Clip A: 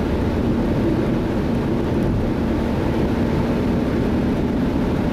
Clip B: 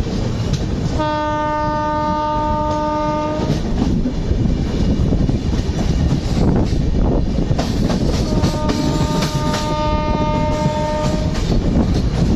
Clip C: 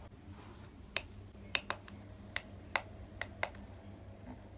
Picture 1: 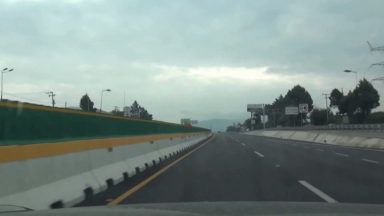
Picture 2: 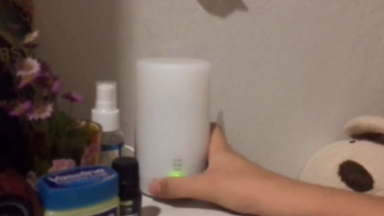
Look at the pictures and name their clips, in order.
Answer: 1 A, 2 C